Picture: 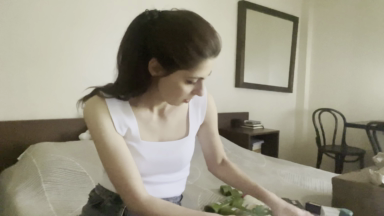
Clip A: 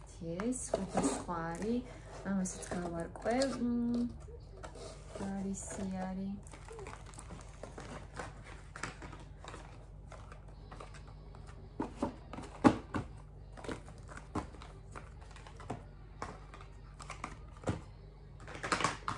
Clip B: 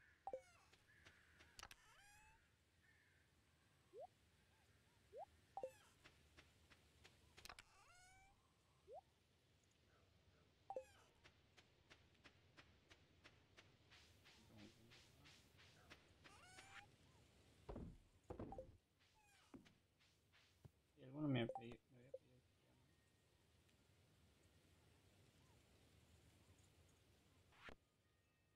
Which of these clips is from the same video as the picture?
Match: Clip A